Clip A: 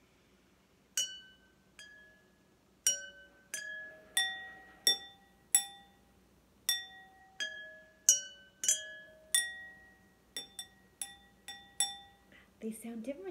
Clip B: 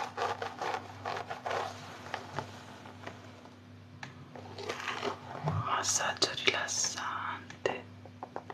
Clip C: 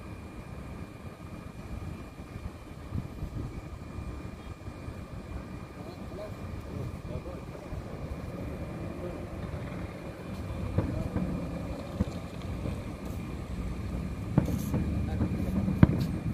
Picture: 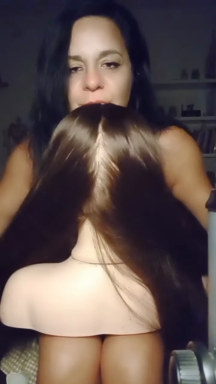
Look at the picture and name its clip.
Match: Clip B